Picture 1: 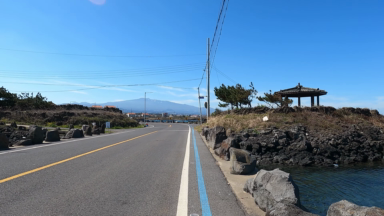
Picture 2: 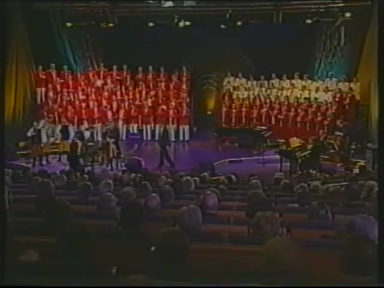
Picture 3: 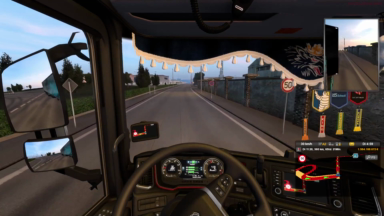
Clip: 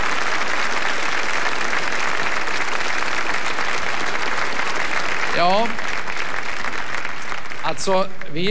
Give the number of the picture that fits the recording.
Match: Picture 2